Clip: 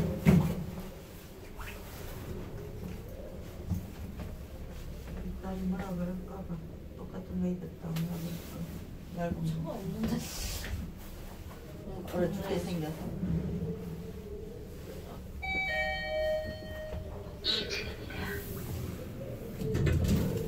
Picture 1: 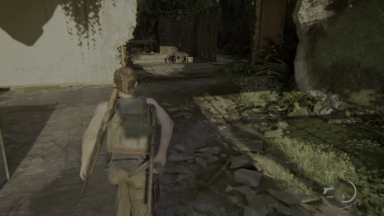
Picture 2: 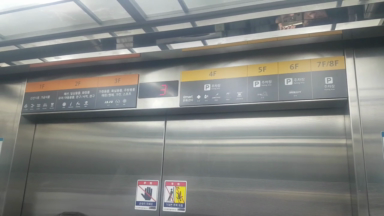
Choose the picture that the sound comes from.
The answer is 2